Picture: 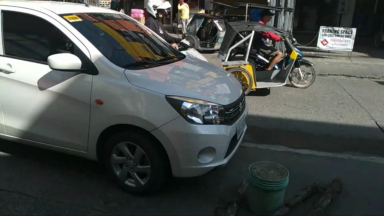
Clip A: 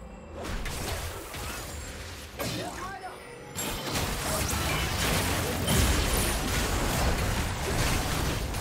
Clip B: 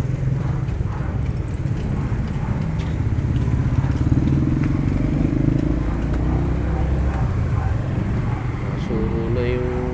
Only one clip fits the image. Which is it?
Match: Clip B